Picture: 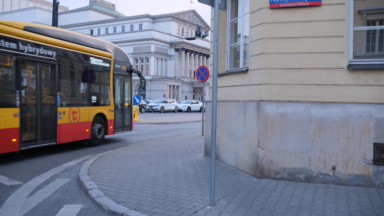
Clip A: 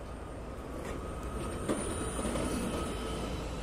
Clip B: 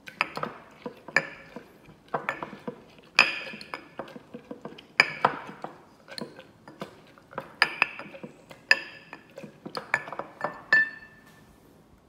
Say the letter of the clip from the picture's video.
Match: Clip A